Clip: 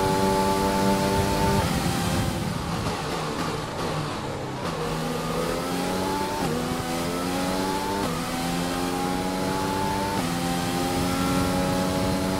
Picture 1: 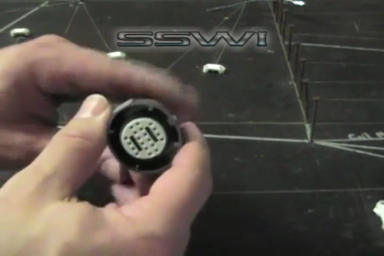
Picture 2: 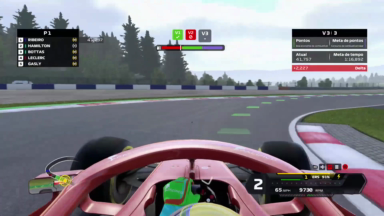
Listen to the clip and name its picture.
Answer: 2